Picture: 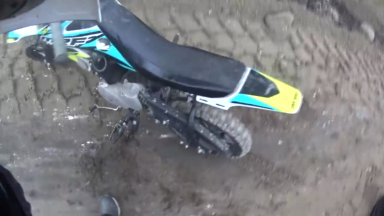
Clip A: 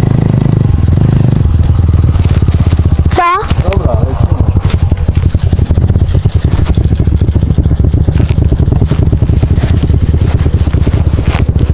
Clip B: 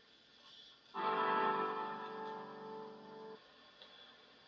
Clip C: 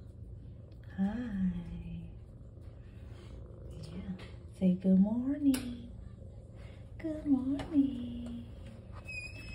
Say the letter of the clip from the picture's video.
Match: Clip A